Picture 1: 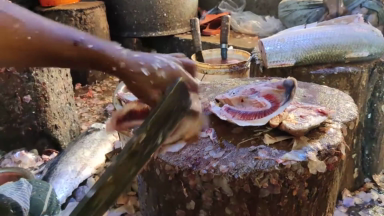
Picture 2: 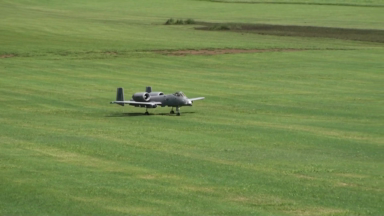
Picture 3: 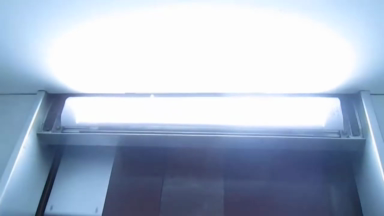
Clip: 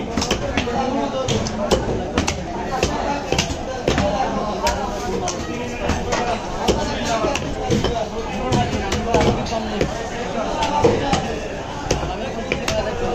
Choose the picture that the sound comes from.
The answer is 1